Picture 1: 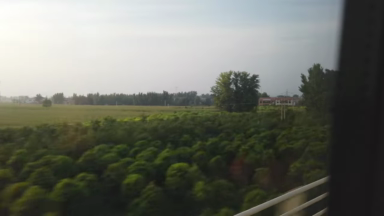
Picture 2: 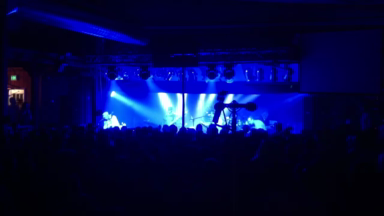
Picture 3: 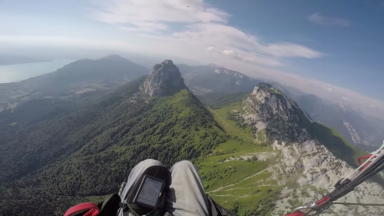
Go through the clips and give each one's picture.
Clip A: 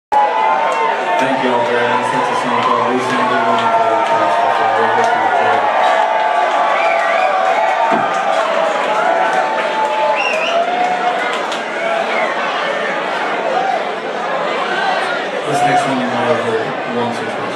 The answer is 2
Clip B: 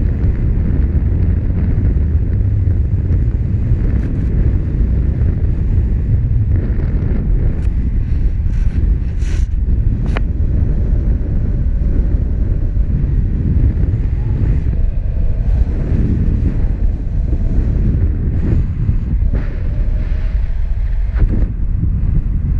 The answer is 3